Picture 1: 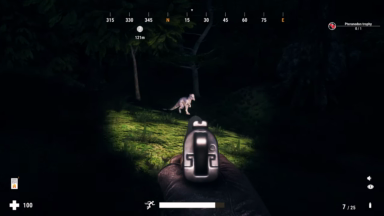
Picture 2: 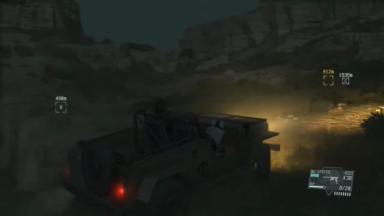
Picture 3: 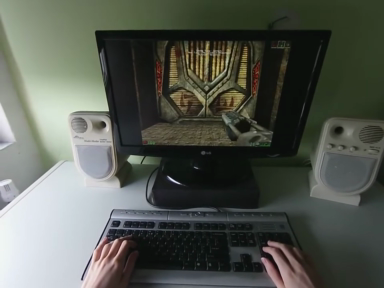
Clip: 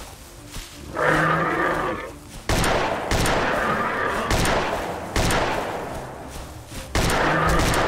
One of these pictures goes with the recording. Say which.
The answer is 1